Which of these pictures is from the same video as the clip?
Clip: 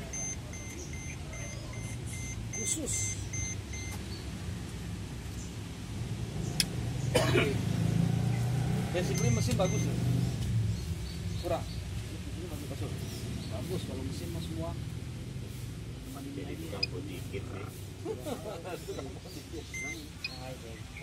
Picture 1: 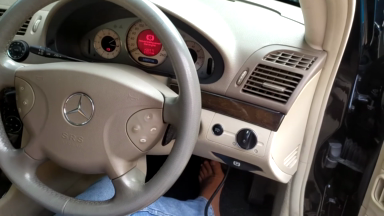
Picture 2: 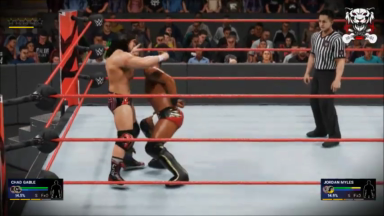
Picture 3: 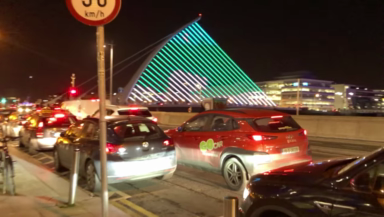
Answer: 1